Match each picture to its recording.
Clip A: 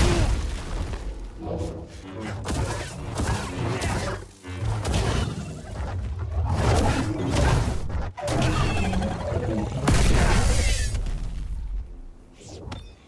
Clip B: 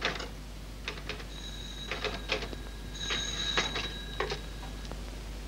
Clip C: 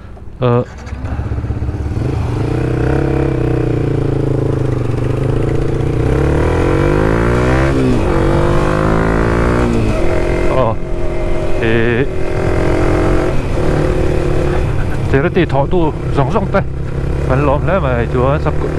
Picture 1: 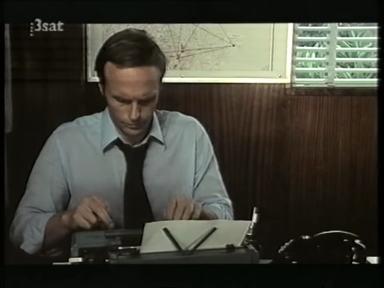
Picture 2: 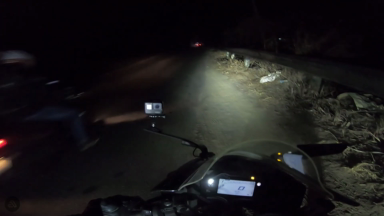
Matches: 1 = B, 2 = C